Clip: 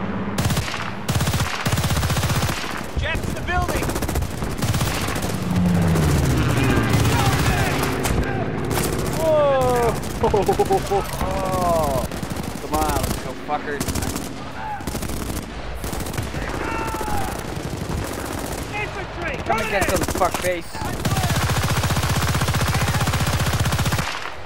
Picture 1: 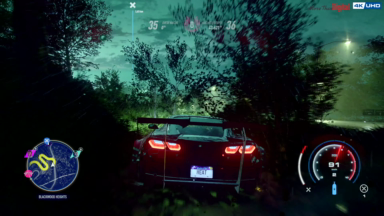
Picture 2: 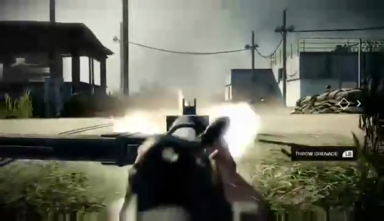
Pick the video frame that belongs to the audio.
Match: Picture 2